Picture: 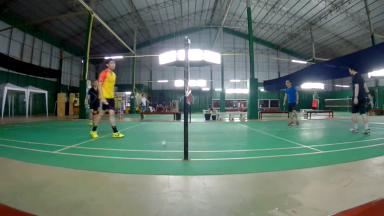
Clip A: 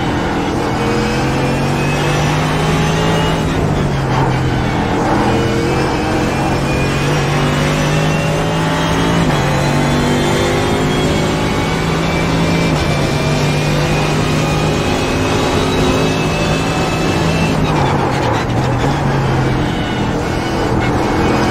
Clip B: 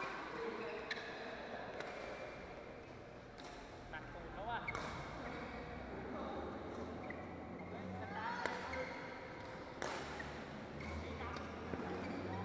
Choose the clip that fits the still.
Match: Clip B